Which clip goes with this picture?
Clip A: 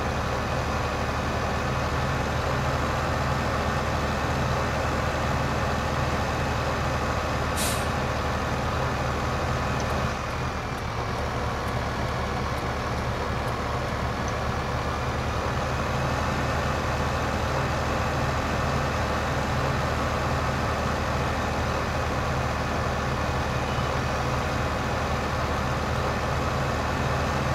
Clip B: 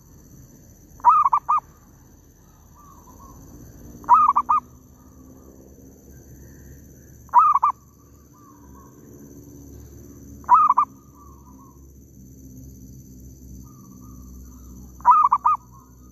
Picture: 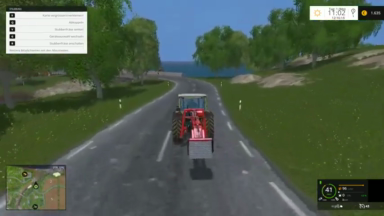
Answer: A